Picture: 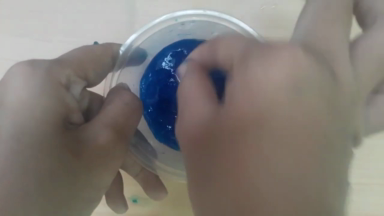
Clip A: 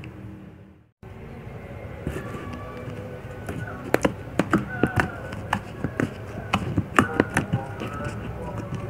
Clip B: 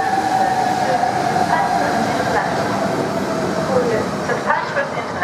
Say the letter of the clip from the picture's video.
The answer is A